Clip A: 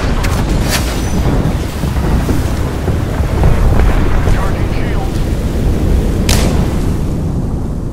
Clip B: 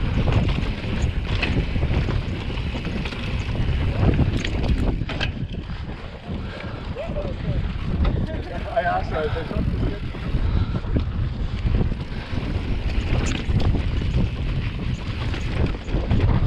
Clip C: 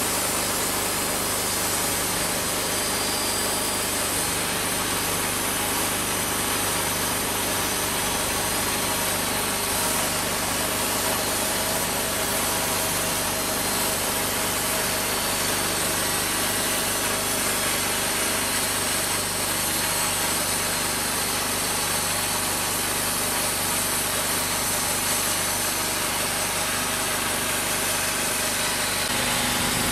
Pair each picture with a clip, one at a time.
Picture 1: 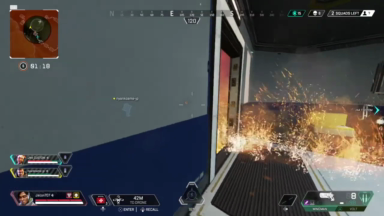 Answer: A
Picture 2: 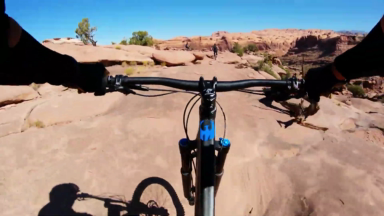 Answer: B